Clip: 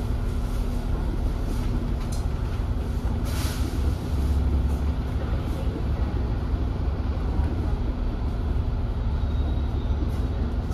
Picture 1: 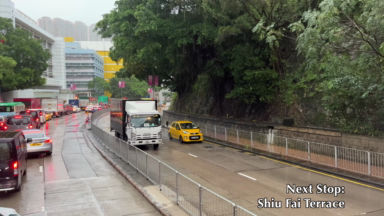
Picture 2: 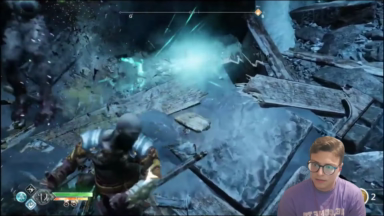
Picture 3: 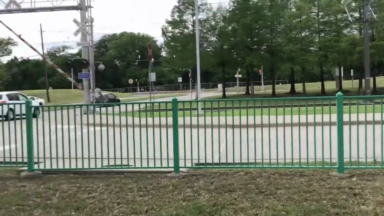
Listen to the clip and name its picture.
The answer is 1